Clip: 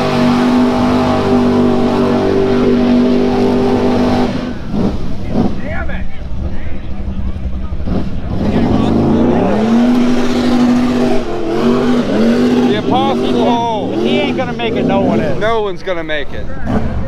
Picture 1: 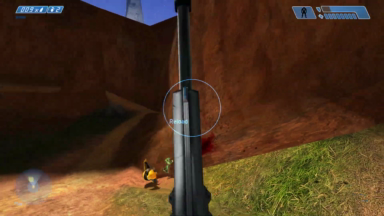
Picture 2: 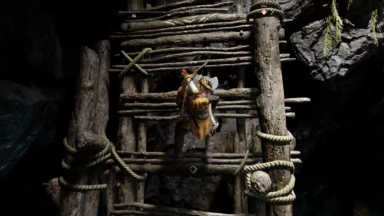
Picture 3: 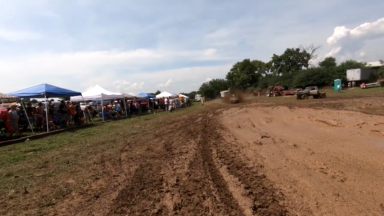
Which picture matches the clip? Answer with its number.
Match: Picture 3